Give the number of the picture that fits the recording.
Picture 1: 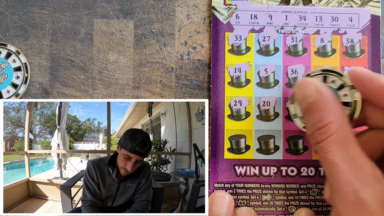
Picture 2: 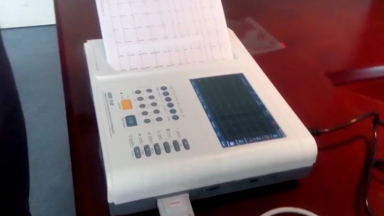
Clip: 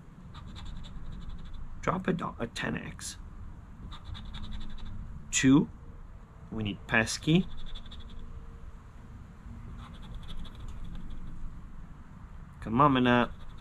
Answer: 1